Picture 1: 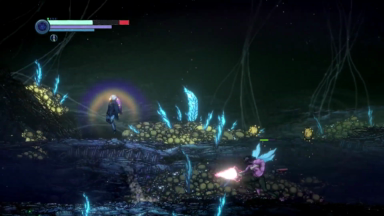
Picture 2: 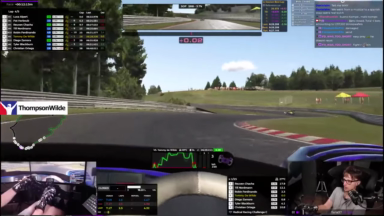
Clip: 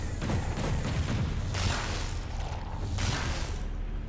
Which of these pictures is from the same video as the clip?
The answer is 1